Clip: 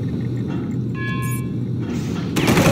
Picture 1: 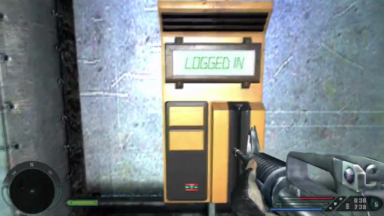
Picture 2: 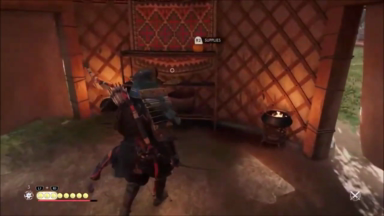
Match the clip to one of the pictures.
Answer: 1